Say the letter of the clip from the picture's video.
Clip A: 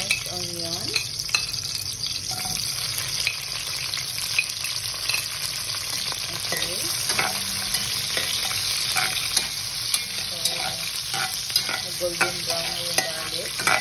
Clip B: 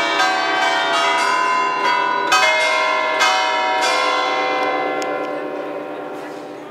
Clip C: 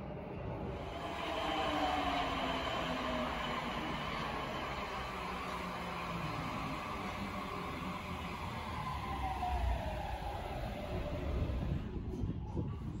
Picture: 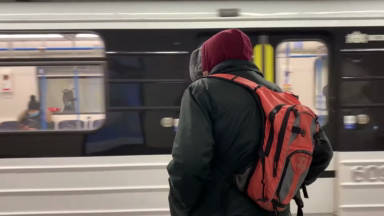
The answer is C